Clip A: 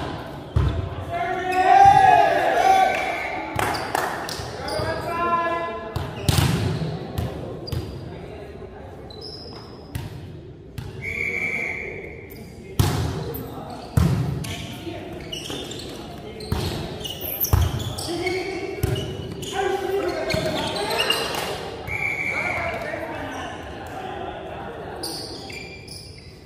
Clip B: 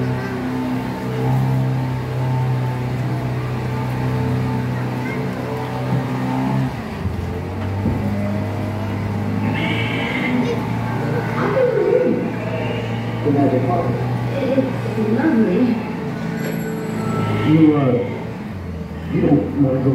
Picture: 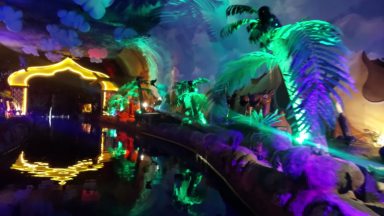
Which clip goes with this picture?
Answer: B